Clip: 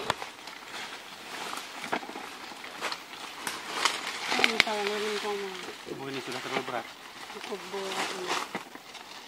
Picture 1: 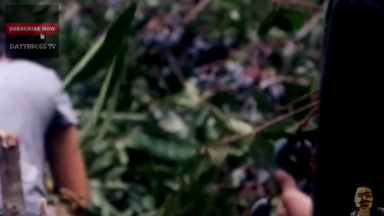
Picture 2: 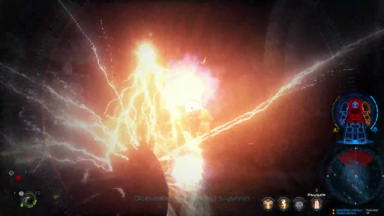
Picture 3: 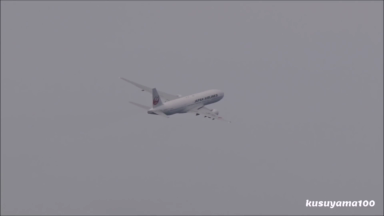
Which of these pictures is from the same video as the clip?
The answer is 1